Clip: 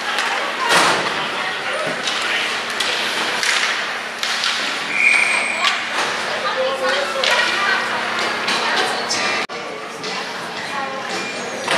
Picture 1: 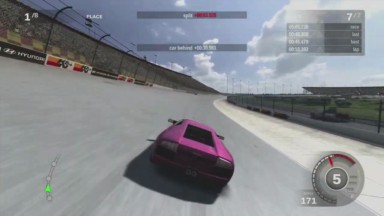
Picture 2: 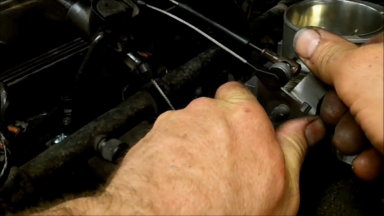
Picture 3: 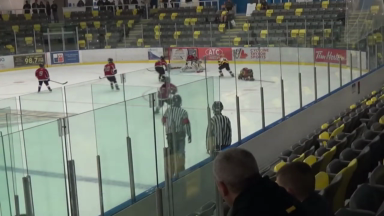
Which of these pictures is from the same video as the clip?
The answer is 3